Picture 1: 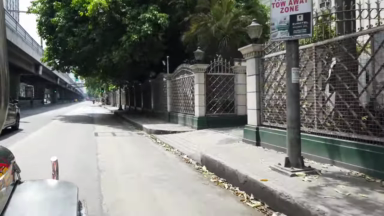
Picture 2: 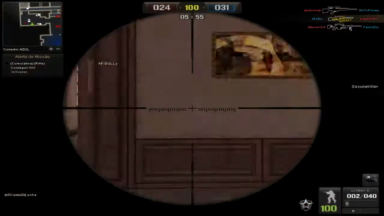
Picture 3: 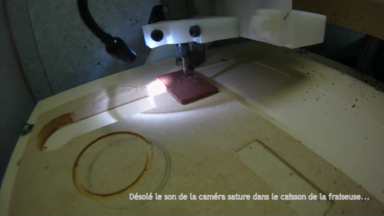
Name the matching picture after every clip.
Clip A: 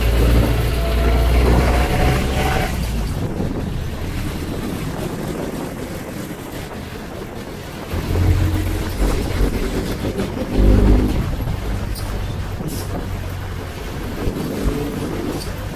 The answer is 1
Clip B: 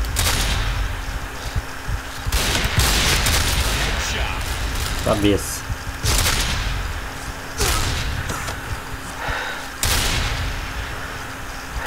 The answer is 2